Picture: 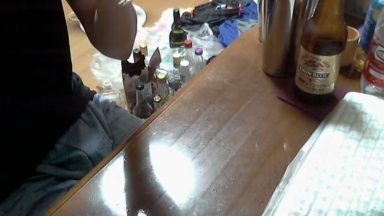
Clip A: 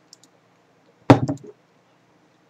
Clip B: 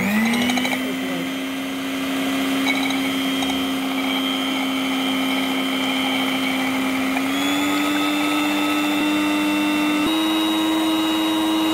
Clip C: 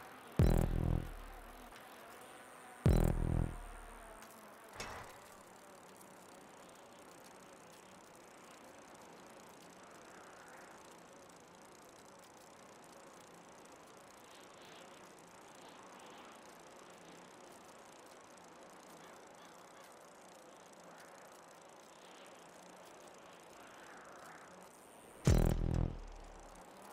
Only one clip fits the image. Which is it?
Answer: A